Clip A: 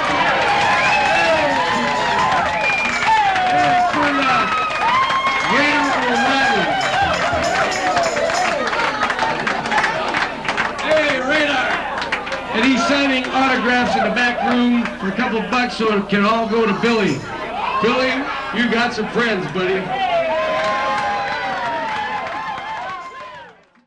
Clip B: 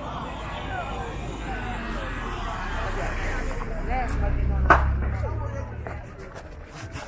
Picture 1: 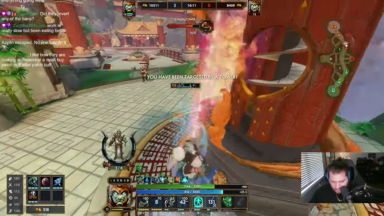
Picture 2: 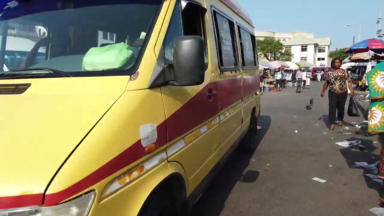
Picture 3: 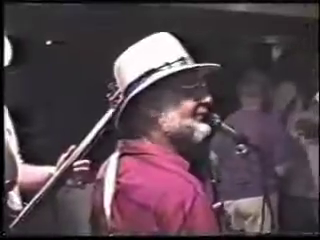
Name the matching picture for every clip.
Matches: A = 3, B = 2